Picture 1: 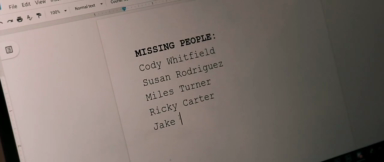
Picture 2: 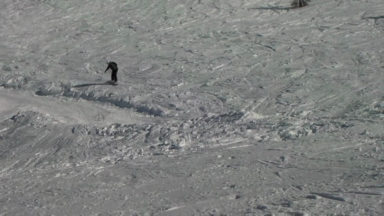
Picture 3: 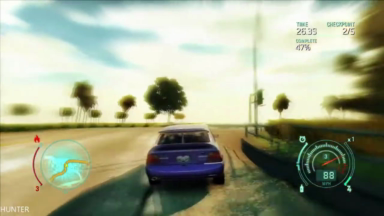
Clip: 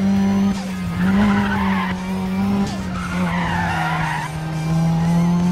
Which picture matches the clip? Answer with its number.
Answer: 3